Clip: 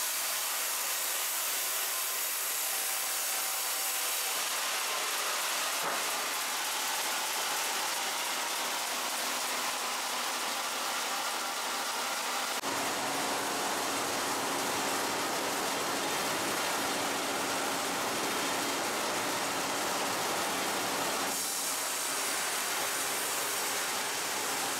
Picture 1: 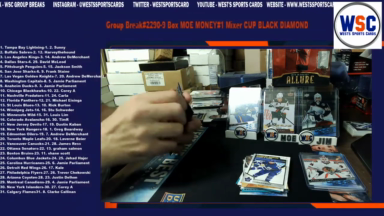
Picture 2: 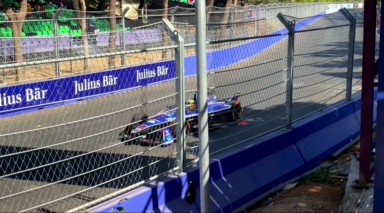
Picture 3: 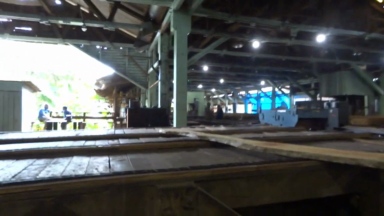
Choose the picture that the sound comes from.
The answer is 3